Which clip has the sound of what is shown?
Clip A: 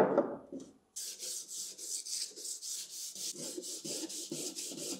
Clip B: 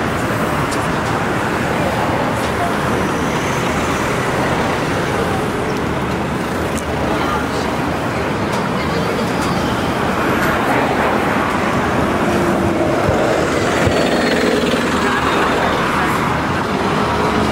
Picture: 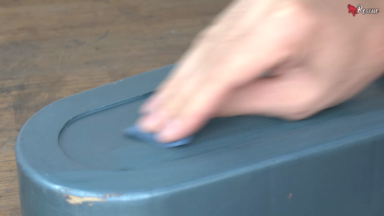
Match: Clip A